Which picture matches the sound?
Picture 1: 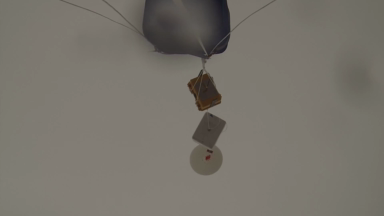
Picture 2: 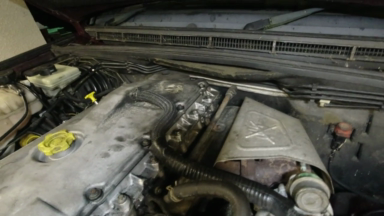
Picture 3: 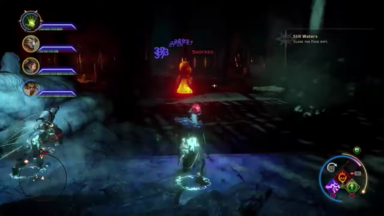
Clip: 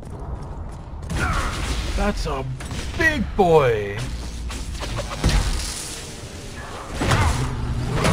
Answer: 3